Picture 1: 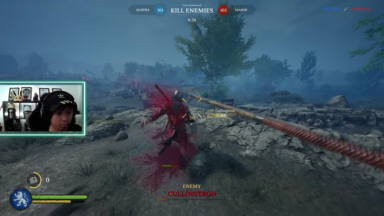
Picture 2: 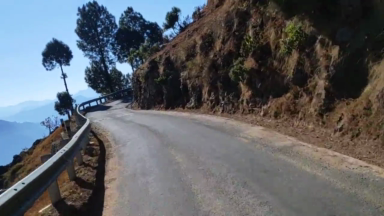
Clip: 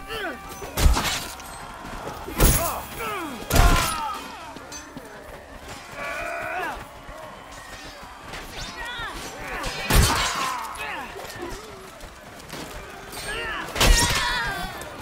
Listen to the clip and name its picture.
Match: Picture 1